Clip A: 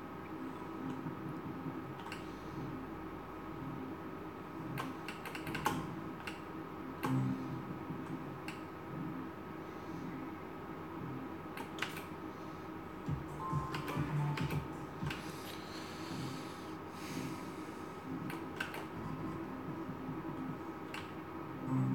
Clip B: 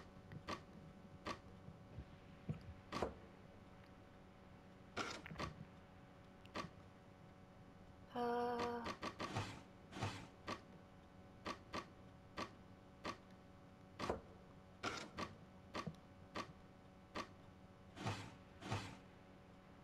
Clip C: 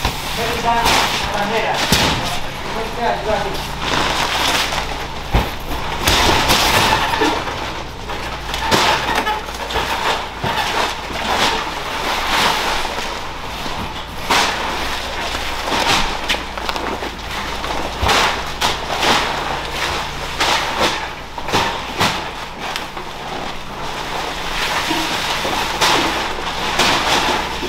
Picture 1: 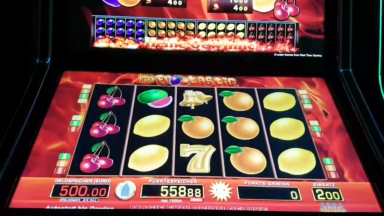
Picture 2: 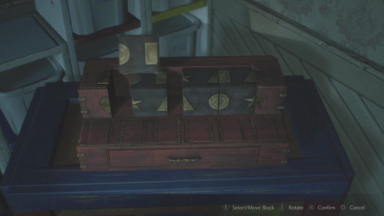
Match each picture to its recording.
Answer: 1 A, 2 B